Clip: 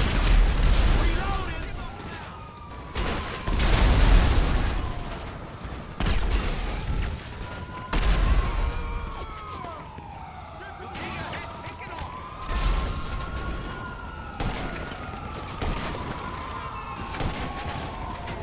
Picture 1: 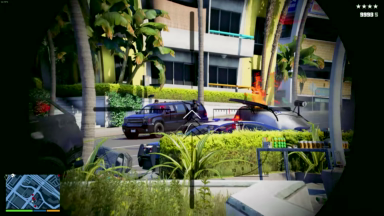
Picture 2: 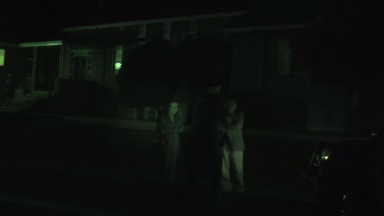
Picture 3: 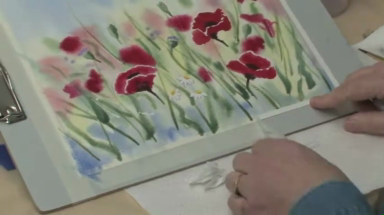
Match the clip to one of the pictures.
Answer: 1